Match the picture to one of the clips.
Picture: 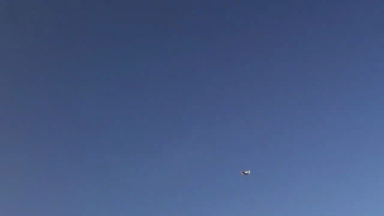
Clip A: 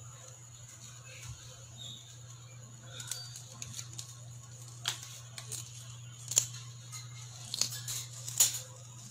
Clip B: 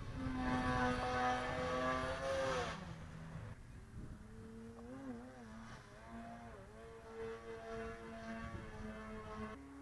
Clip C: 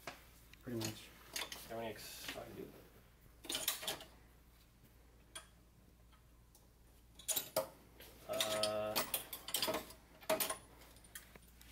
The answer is B